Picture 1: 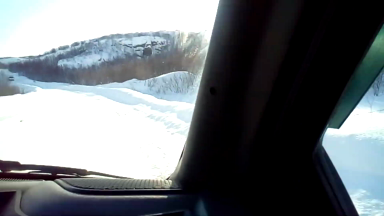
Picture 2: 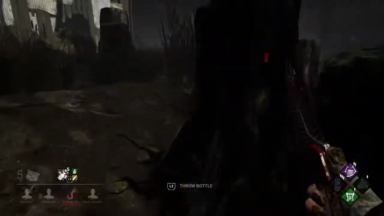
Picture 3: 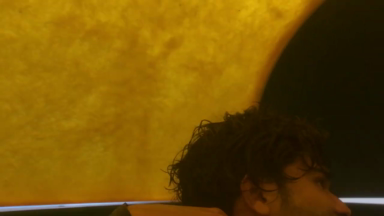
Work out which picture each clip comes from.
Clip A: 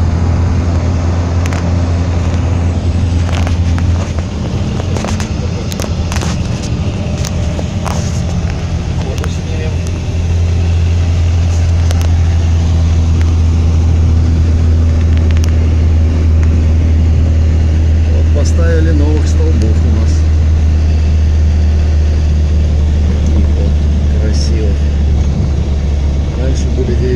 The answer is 1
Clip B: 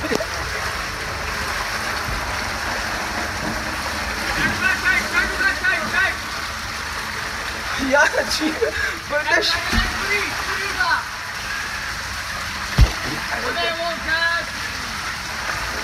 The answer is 3